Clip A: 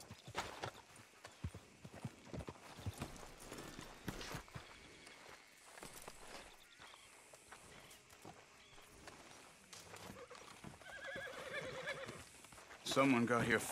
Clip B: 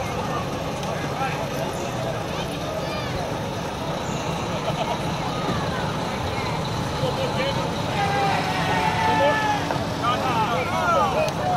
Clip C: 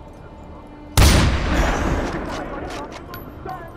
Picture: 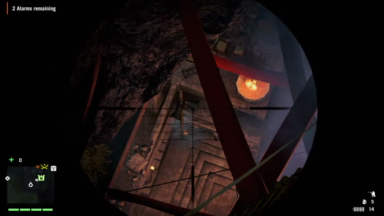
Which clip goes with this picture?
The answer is C